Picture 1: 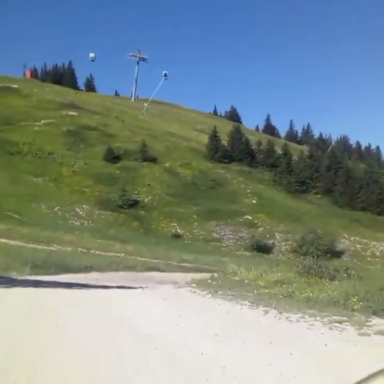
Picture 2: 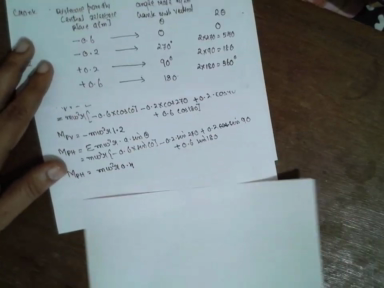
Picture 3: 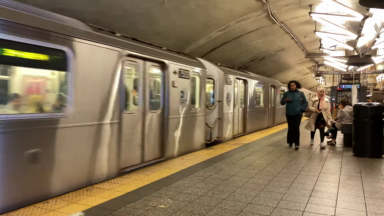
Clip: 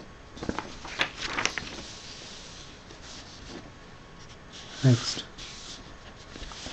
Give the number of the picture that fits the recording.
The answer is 2